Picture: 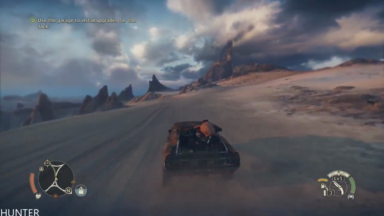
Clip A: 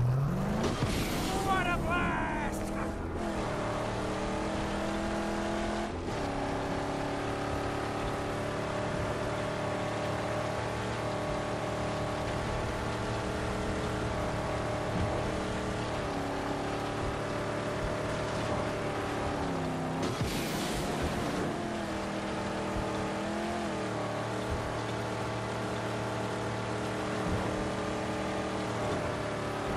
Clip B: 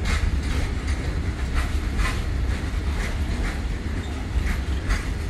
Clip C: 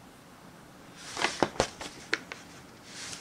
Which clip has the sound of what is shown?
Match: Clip A